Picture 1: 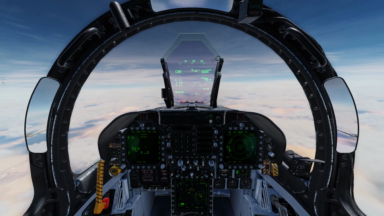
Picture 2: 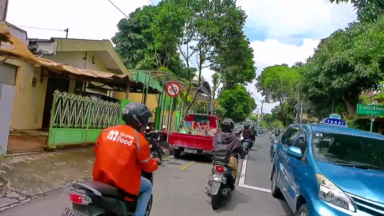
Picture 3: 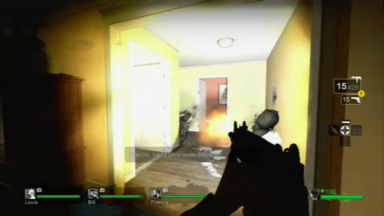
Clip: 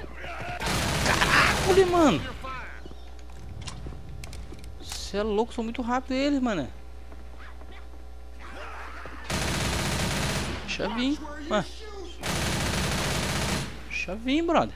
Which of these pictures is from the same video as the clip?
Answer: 3